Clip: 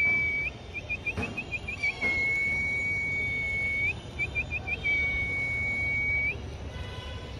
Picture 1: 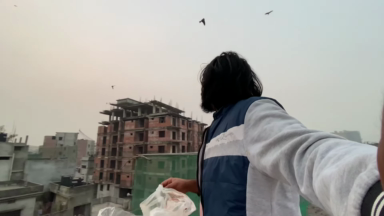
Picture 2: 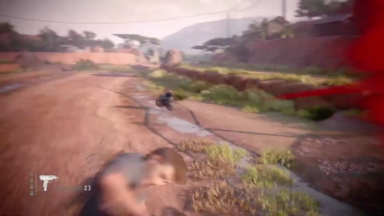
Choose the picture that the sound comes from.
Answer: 1